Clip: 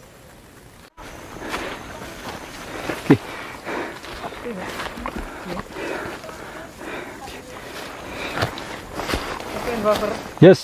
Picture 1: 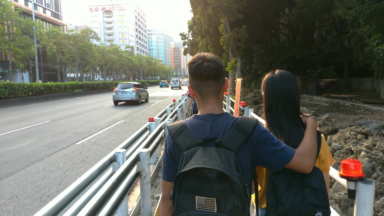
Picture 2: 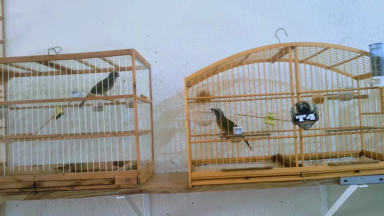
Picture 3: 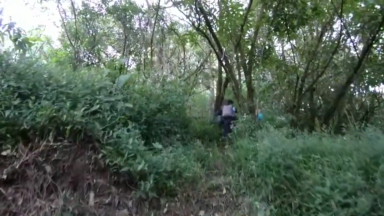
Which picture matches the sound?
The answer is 3